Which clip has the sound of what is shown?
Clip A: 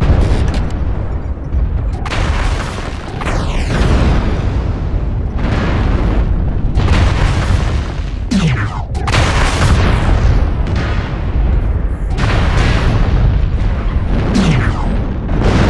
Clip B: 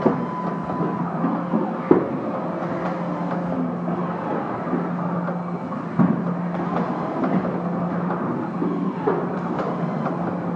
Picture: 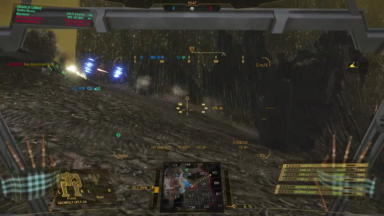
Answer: A